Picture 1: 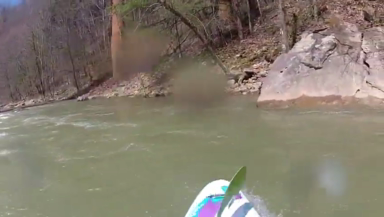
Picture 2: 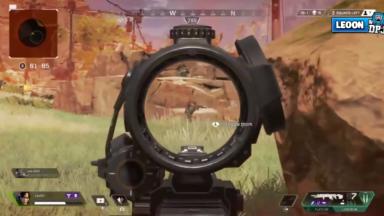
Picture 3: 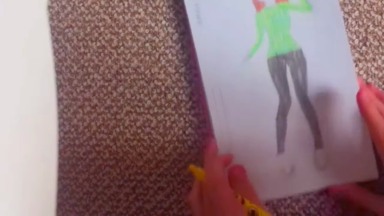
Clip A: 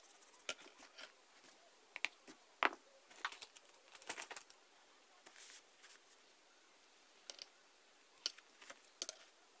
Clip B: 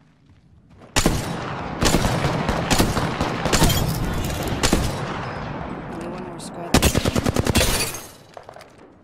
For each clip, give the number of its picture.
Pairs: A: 3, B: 2